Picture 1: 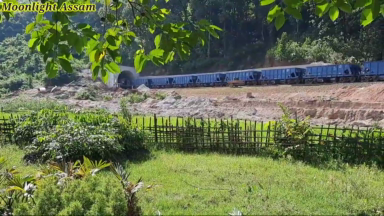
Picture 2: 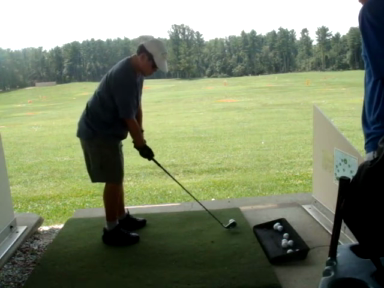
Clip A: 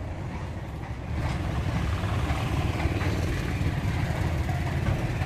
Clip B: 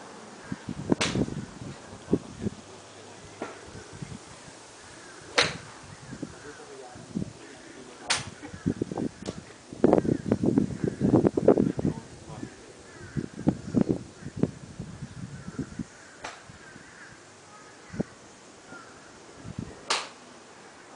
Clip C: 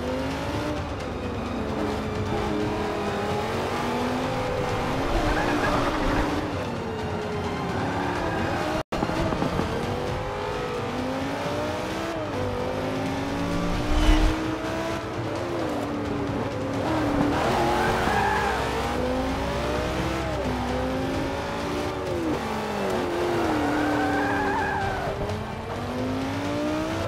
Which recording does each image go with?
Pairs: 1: A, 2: B